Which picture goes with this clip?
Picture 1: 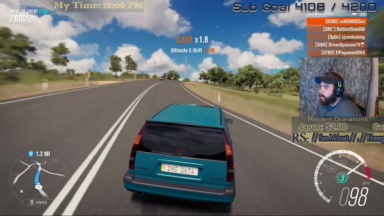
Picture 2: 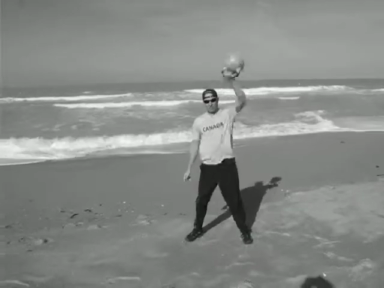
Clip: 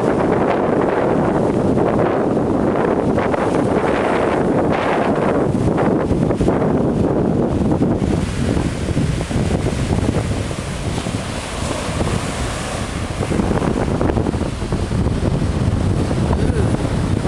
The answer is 2